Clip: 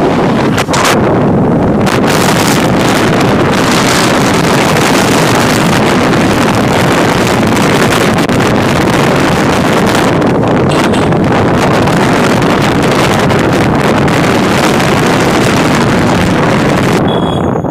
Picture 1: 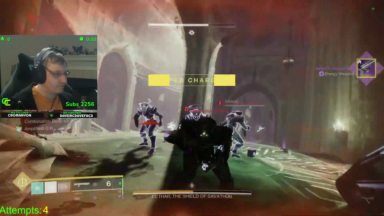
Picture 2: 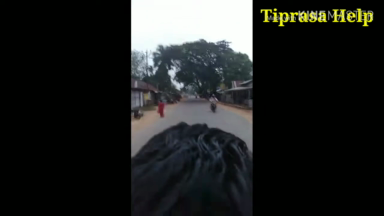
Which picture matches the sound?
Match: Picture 2